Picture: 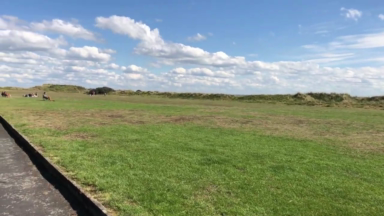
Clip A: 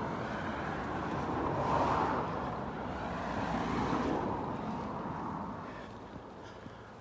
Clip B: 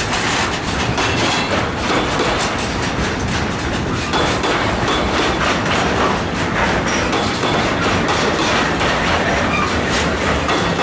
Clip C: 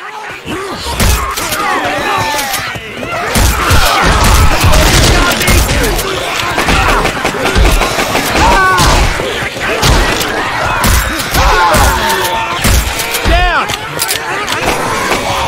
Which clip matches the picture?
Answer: A